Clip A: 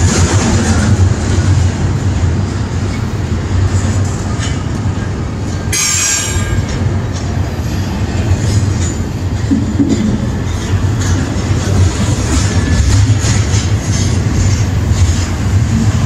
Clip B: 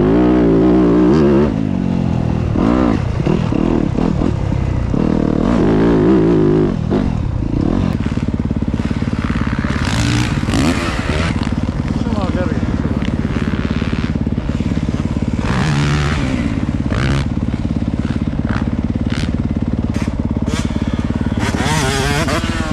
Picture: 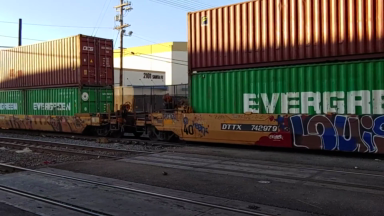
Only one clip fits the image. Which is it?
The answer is A